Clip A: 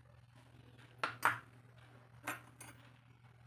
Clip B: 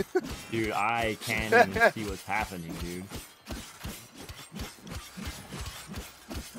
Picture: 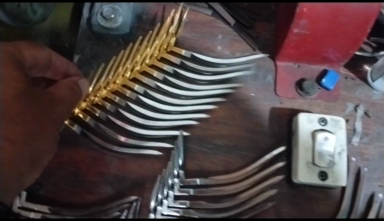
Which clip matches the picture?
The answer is A